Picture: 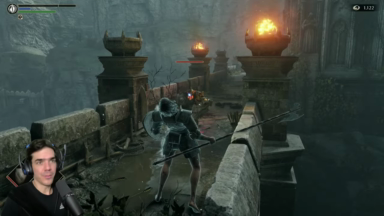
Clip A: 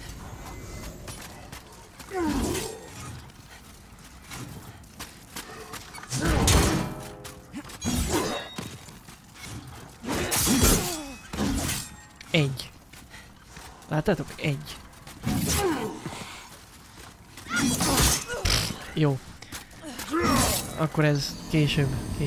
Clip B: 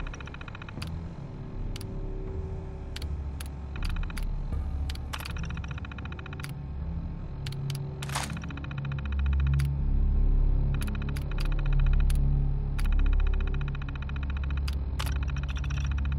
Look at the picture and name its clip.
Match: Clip A